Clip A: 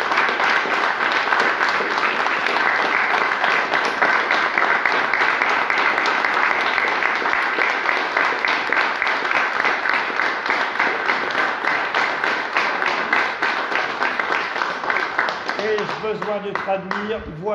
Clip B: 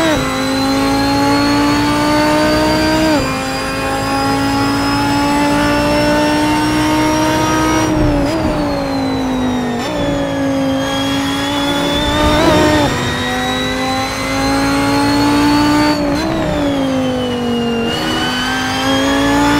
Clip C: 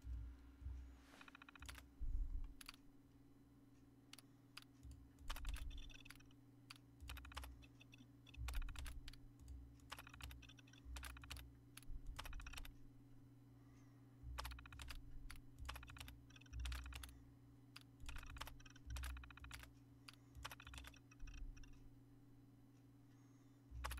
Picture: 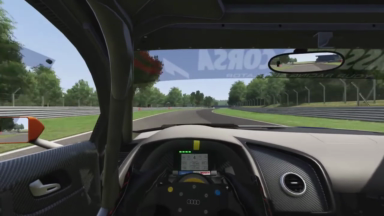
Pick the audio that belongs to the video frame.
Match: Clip B